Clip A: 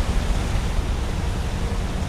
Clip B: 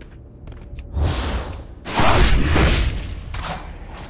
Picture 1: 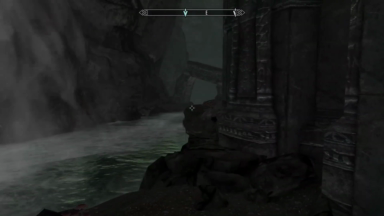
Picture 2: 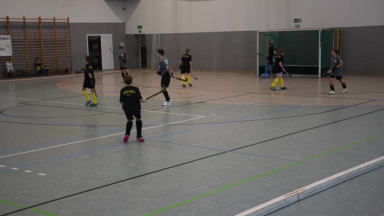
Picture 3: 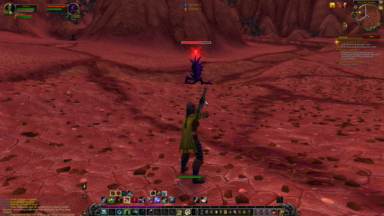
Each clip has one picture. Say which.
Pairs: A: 1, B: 3